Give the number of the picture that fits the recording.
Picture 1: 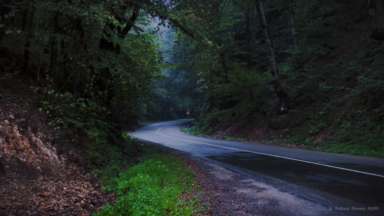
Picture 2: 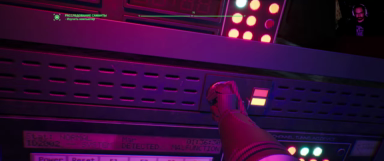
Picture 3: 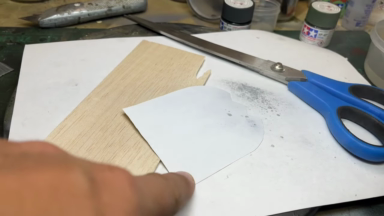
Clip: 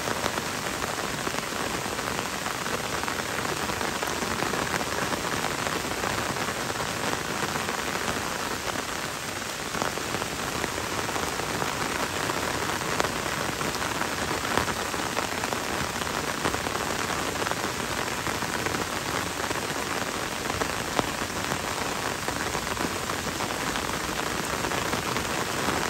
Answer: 1